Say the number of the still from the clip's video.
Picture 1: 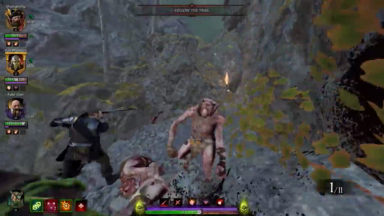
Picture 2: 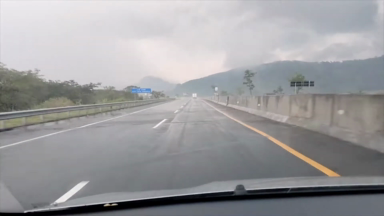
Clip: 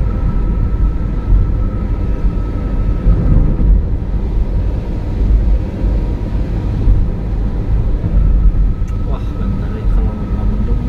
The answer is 2